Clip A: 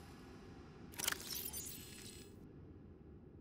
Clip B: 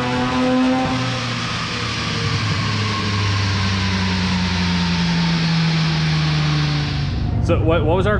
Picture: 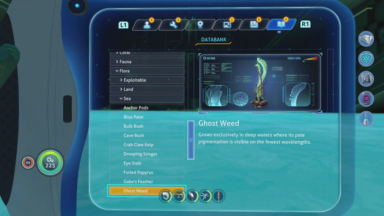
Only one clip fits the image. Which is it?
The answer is A